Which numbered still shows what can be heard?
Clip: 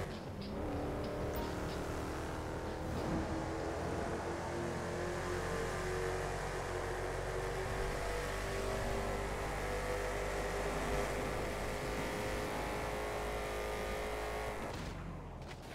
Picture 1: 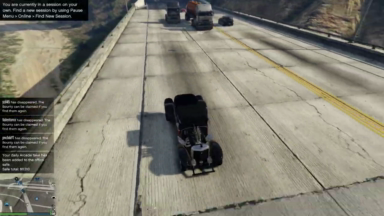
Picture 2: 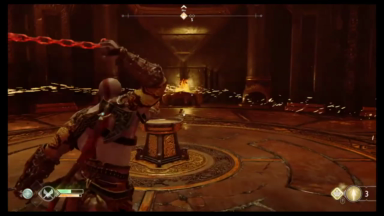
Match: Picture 1